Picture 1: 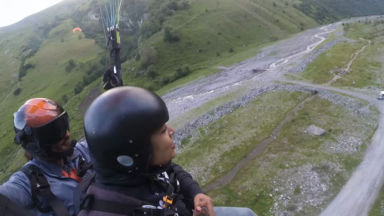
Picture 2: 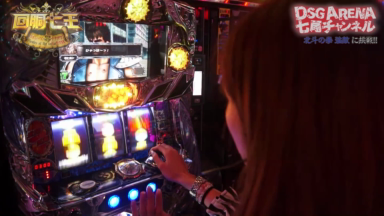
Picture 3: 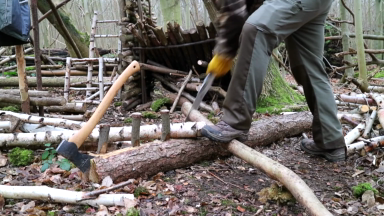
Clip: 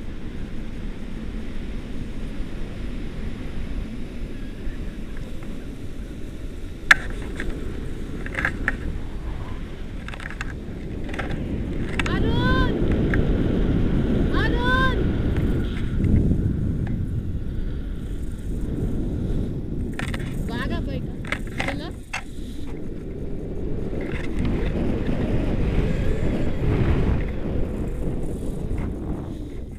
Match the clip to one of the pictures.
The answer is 1